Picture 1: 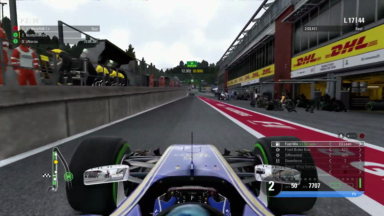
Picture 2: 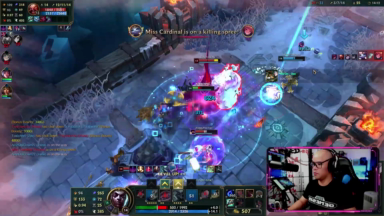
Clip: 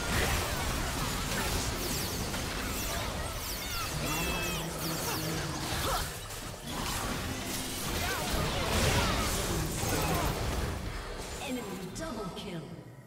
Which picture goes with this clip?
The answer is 2